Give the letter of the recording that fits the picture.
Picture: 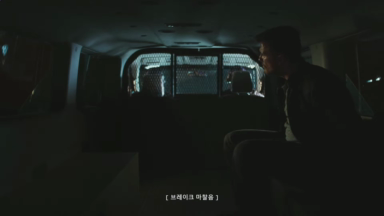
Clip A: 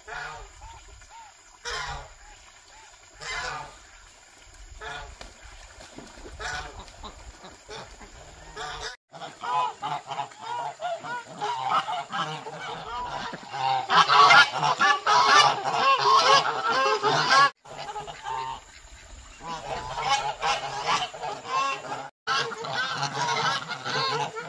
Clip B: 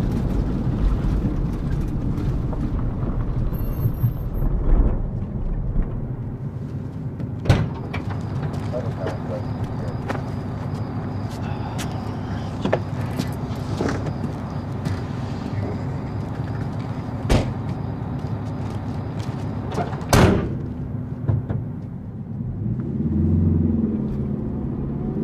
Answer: B